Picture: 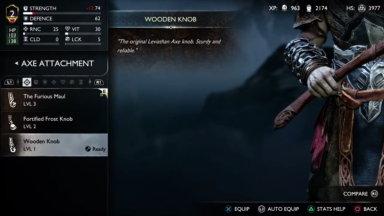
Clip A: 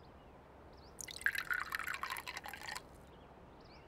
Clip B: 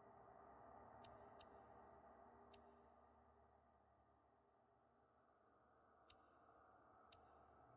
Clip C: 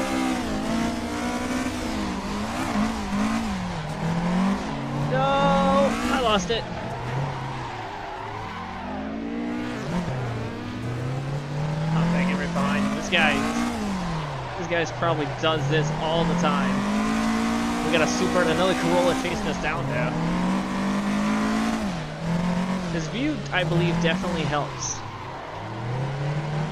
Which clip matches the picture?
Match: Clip B